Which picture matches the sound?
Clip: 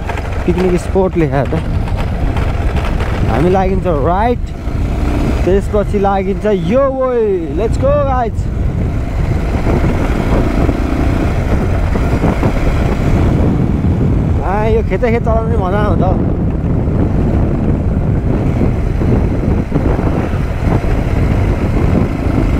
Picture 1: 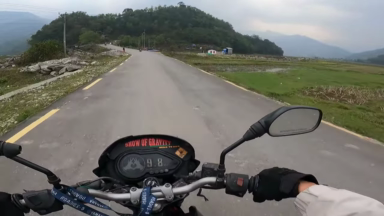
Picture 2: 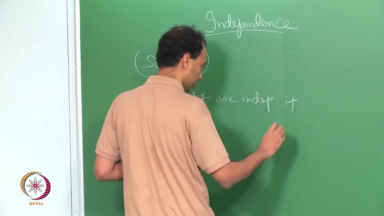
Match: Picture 1